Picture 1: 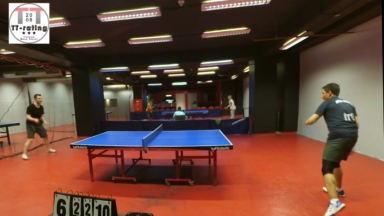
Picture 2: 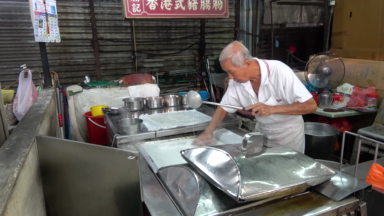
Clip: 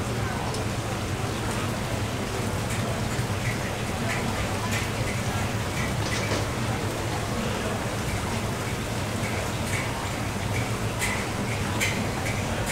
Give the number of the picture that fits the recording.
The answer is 2